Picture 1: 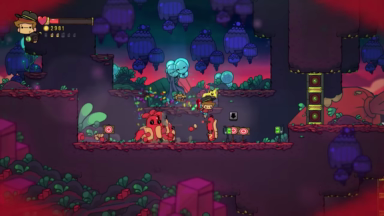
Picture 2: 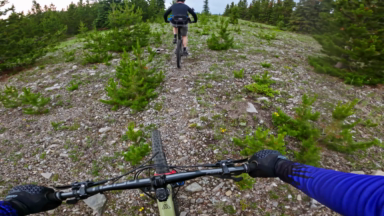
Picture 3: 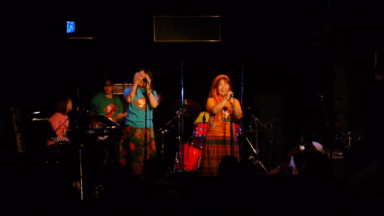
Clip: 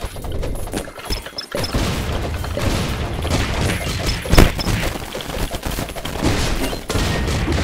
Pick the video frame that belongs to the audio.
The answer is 1